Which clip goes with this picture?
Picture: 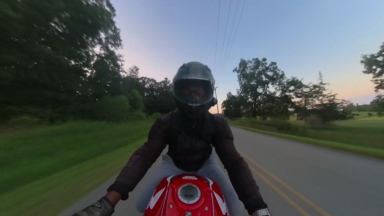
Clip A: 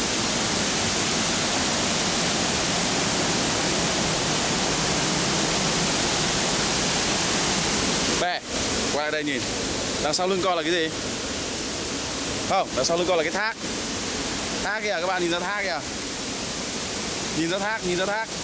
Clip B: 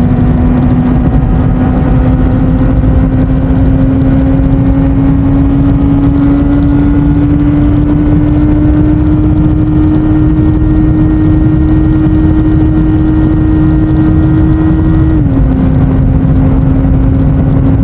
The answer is B